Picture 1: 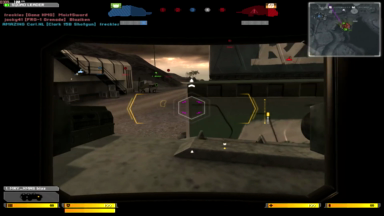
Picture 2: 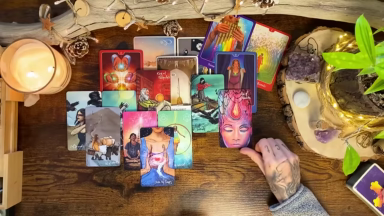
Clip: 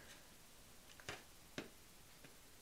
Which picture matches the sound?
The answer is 2